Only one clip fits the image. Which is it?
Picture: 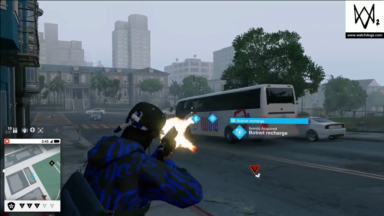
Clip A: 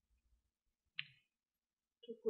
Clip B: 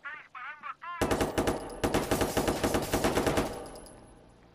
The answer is B